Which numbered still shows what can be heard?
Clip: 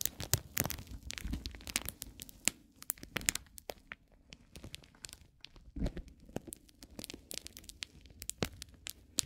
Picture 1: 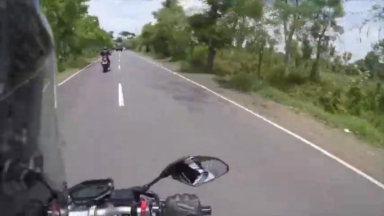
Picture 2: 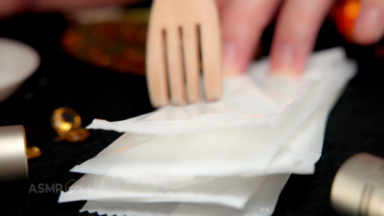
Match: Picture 2